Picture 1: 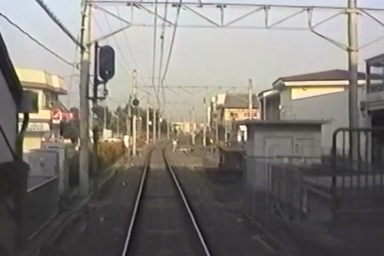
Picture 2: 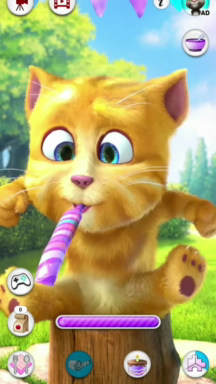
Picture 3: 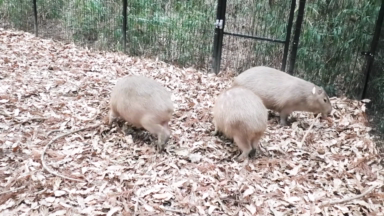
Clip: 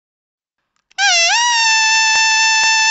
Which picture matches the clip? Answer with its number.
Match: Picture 2